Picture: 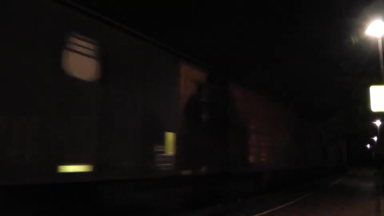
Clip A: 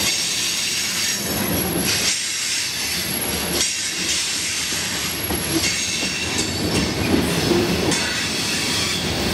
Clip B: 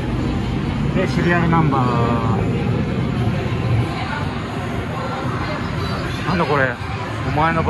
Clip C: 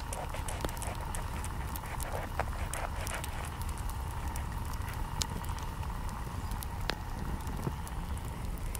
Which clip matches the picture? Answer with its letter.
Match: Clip A